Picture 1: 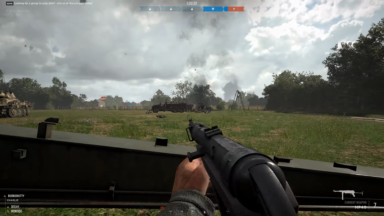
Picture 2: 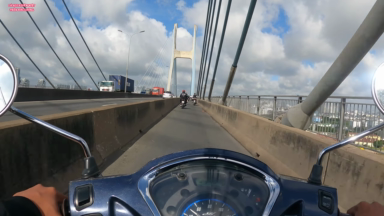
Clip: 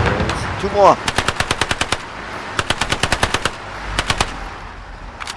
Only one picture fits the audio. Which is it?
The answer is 1